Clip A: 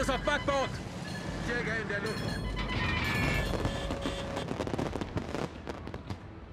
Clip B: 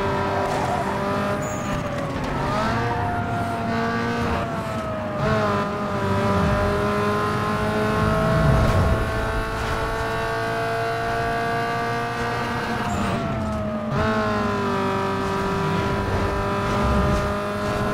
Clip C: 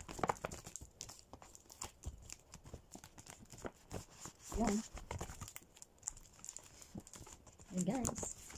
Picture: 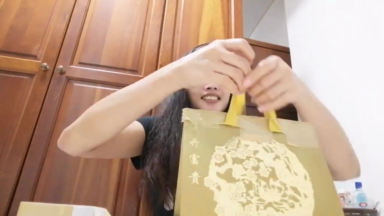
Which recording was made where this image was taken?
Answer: C